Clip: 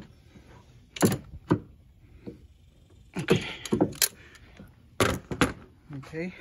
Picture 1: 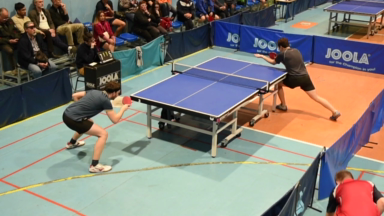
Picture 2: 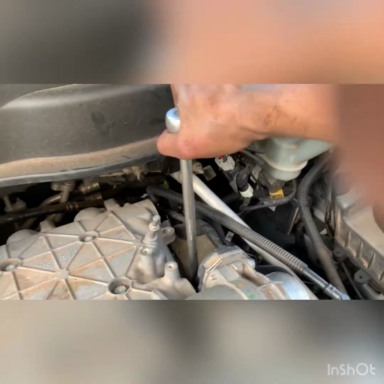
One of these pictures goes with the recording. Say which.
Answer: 2